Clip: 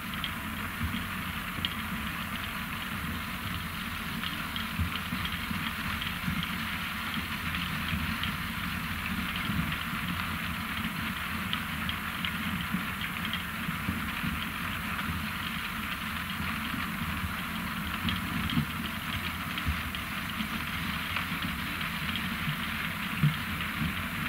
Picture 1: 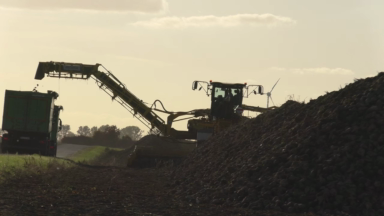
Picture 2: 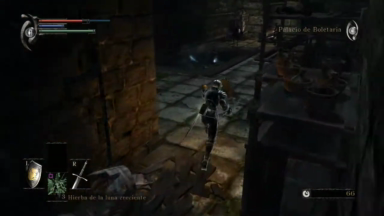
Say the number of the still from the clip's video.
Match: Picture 1